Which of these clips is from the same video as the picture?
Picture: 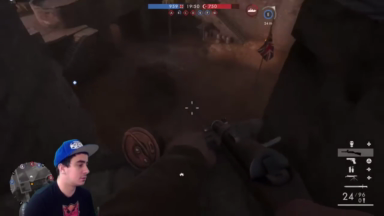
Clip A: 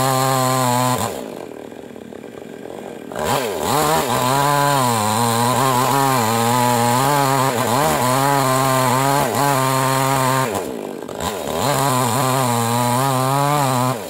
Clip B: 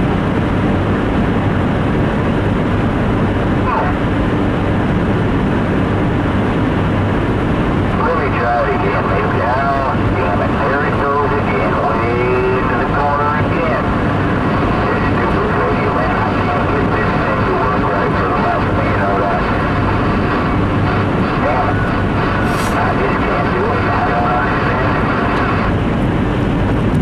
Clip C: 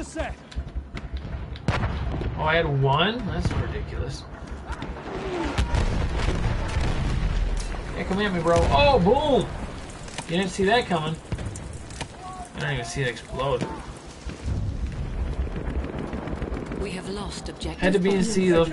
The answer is C